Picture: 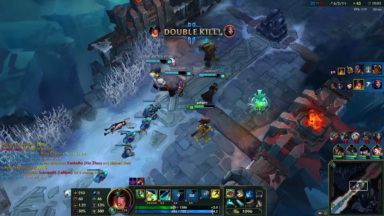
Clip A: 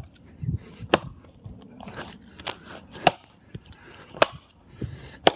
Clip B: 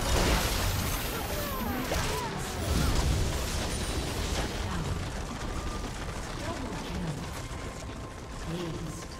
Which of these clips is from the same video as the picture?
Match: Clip B